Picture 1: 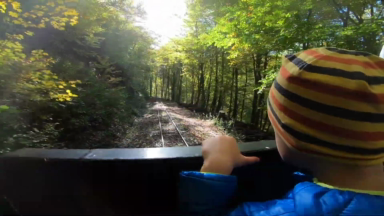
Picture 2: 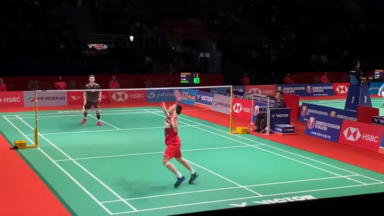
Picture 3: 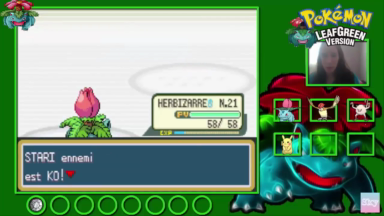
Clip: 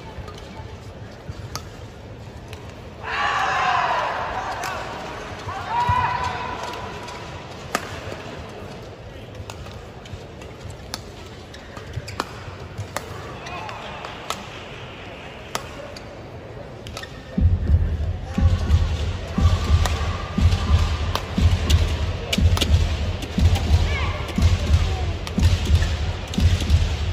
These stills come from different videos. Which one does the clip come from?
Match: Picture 2